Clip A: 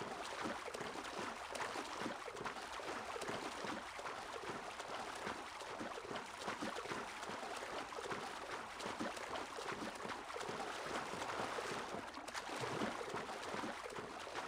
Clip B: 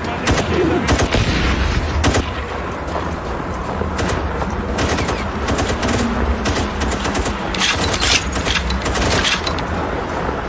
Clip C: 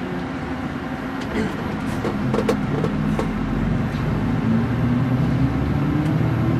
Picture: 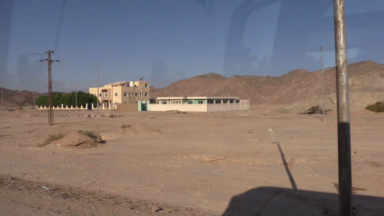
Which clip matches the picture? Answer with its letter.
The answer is C